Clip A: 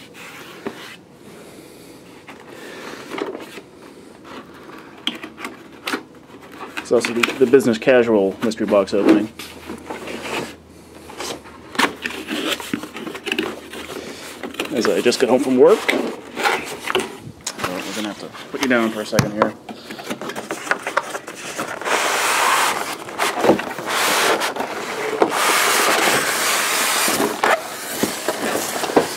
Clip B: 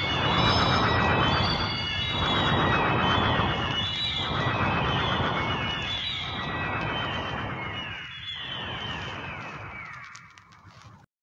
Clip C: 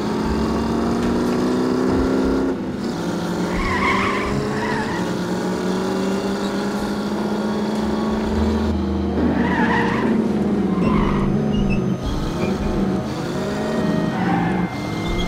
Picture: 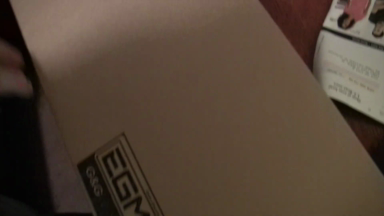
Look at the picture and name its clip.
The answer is A